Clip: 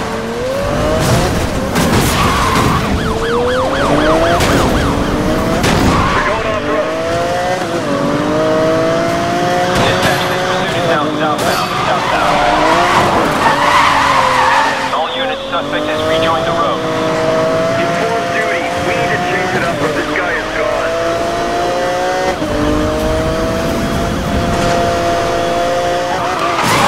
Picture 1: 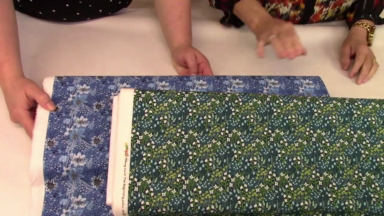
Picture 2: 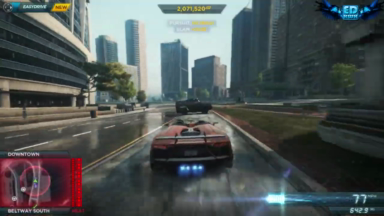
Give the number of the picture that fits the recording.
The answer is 2